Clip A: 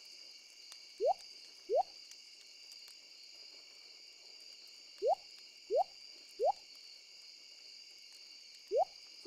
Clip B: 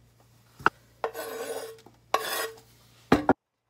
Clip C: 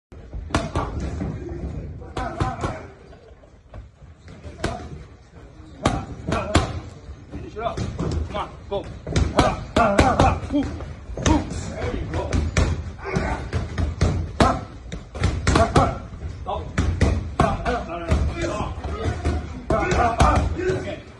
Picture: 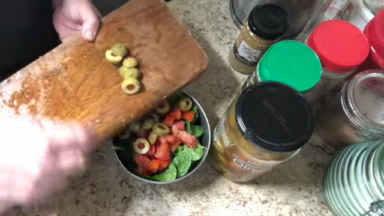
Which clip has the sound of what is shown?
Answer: B